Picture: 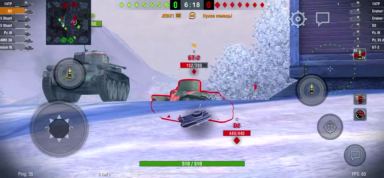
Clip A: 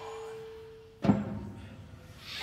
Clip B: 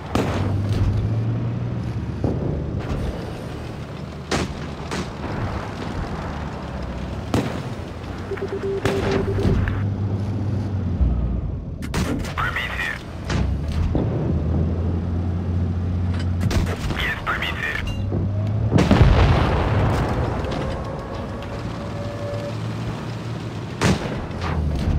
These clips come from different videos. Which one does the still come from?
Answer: B